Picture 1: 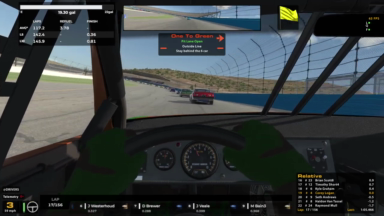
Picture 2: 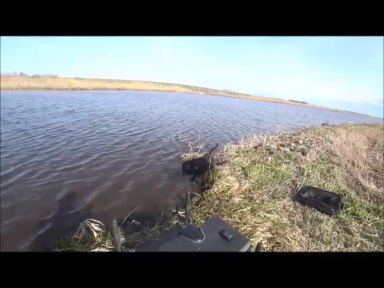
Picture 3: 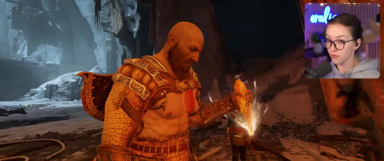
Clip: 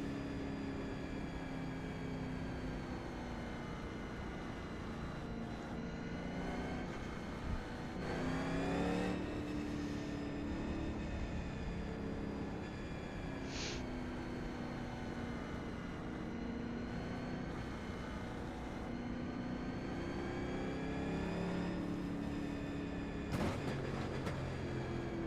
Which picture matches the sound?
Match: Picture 1